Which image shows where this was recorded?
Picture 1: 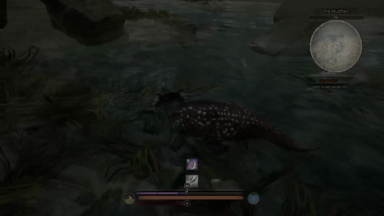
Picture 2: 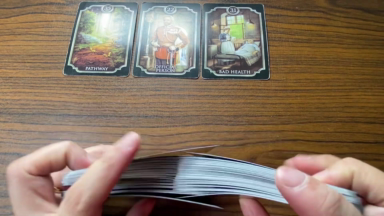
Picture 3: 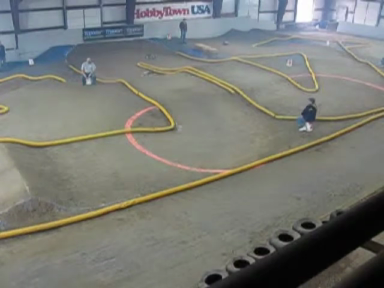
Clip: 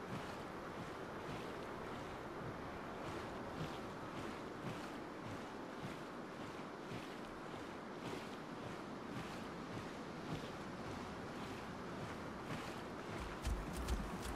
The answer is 1